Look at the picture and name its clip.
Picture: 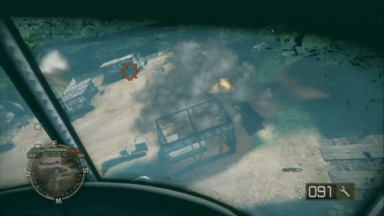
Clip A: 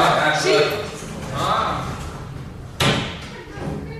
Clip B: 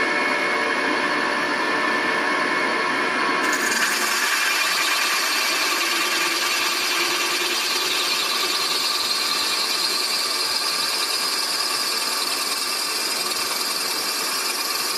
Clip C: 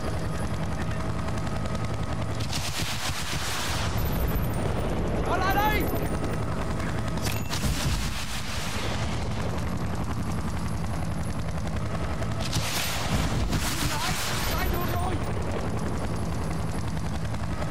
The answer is C